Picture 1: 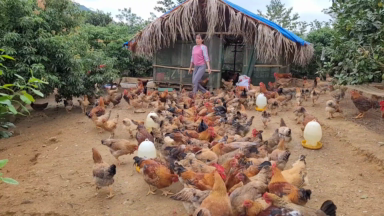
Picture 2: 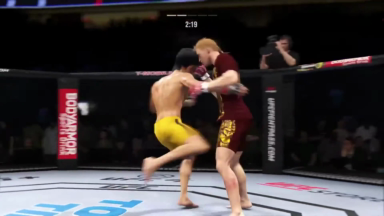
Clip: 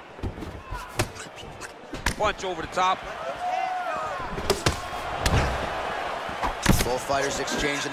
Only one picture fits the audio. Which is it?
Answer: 2